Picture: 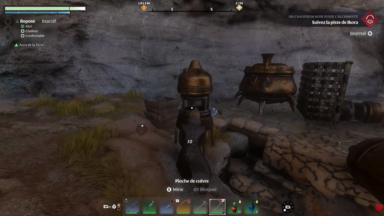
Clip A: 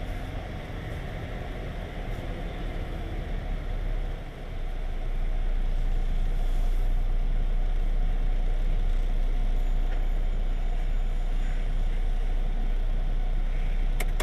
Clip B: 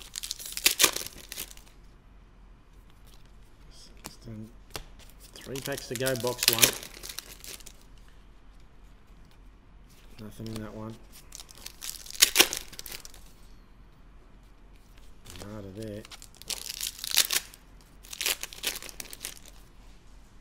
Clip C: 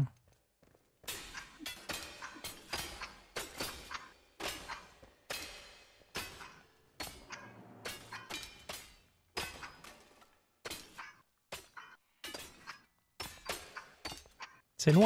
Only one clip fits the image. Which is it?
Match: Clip C